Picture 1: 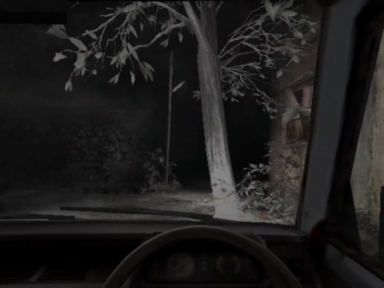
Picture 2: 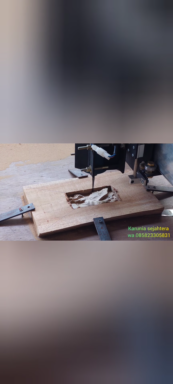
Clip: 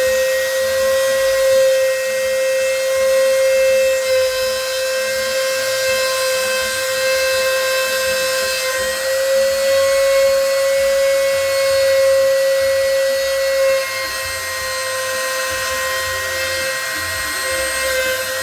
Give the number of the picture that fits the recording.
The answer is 2